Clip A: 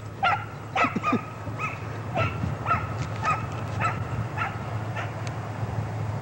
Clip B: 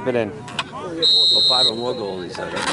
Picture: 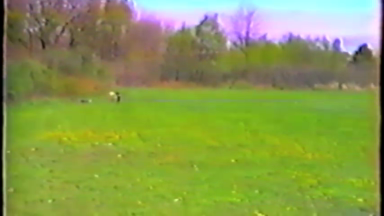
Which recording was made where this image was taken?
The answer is A